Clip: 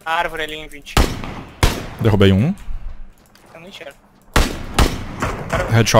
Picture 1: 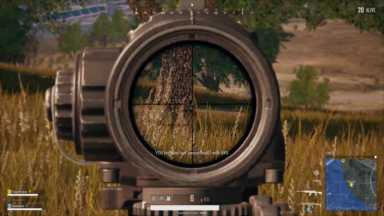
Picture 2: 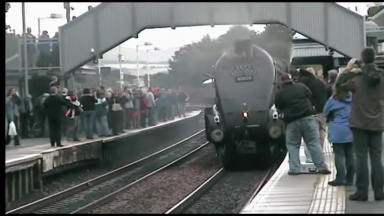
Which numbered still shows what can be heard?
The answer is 1